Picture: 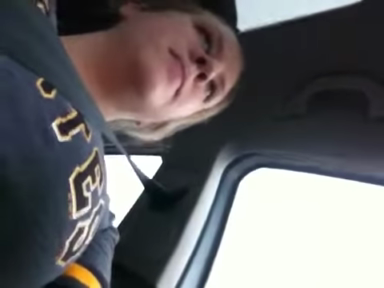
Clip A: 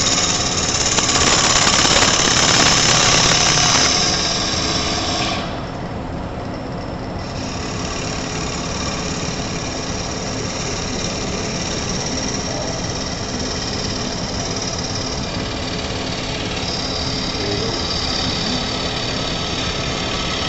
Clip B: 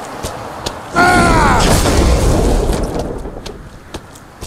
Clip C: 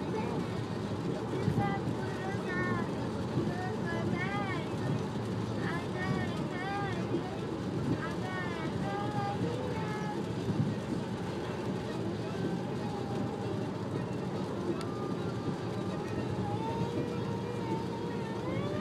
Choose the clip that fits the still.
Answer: C